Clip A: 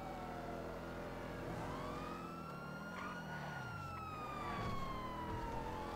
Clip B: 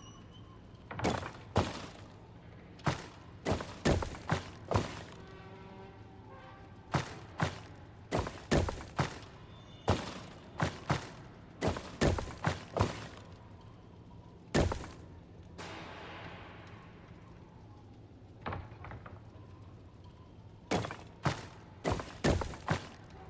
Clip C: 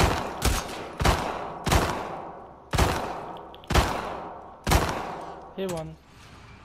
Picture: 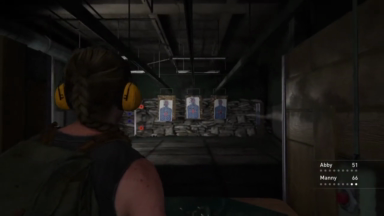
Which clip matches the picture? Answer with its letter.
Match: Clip C